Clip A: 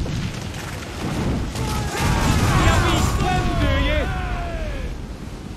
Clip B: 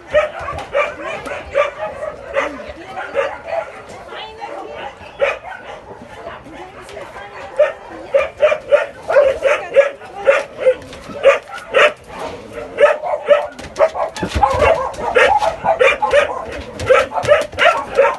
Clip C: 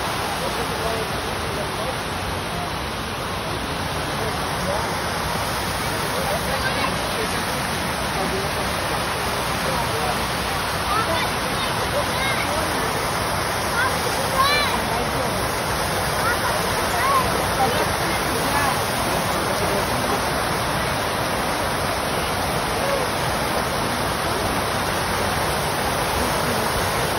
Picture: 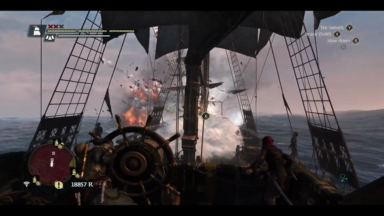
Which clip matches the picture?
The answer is A